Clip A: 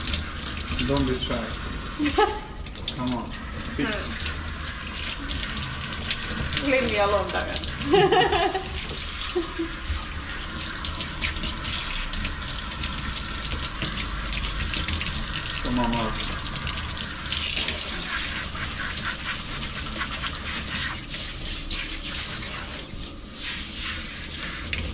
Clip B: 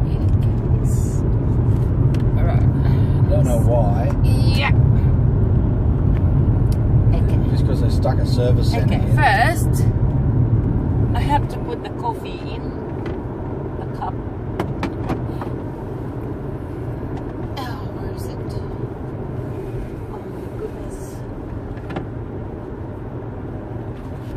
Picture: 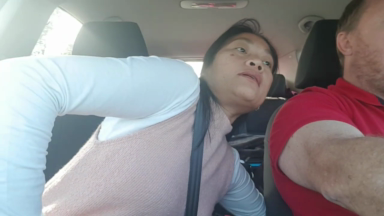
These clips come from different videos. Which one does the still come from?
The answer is B